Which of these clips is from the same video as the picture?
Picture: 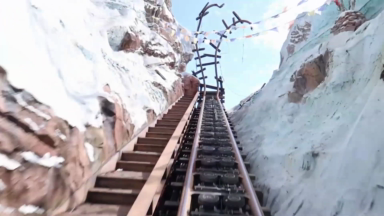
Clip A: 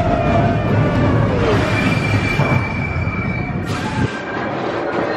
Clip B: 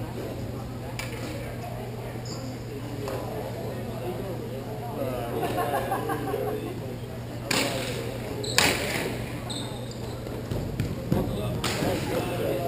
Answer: A